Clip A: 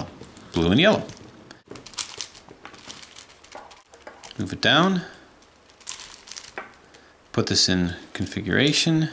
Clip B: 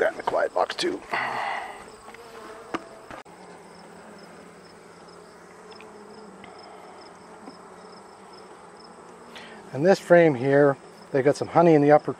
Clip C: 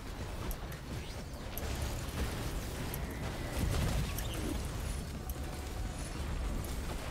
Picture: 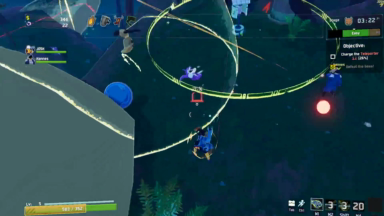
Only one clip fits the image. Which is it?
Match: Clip C